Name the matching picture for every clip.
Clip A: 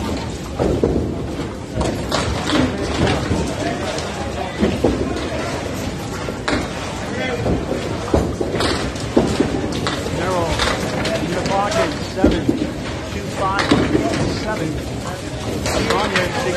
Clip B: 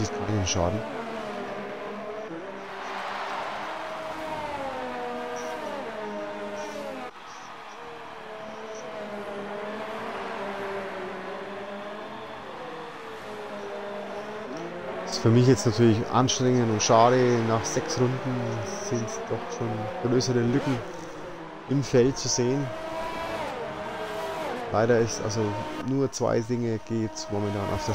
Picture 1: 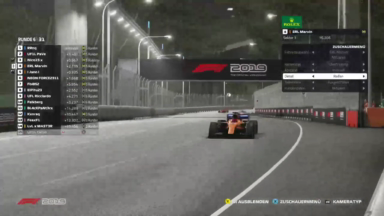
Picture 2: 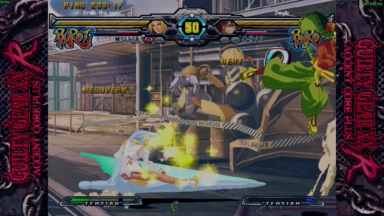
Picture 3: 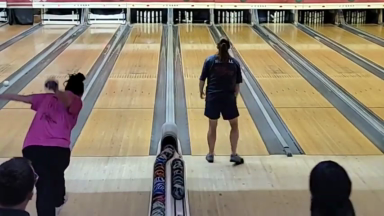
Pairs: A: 3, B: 1